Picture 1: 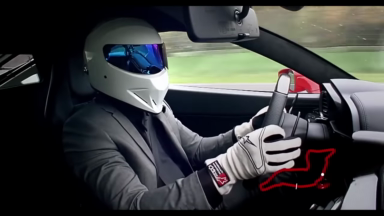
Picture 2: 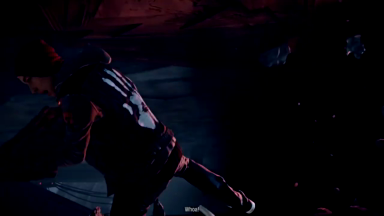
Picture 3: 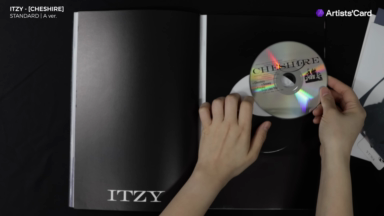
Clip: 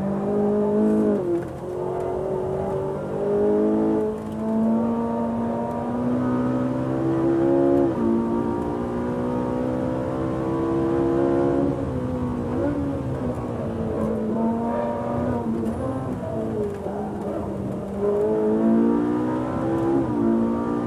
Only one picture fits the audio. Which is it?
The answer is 1